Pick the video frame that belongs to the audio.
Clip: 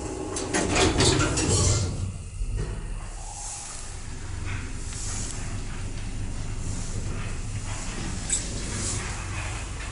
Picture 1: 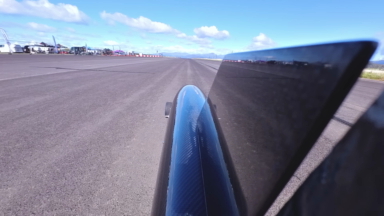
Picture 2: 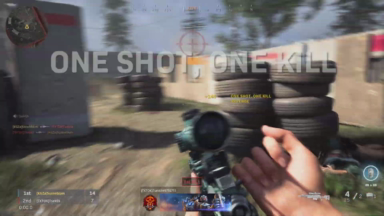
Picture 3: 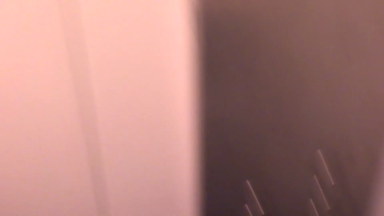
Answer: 3